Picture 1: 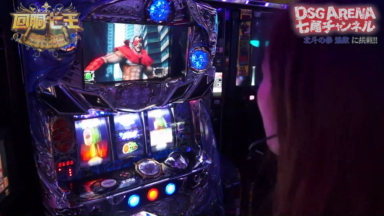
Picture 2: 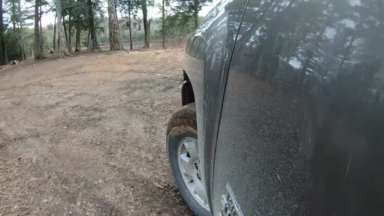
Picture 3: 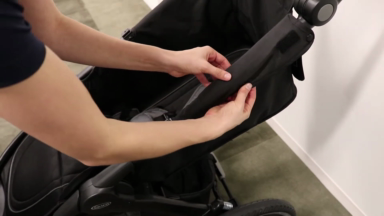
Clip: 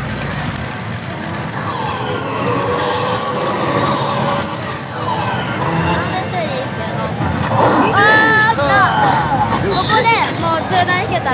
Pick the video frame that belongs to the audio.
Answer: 1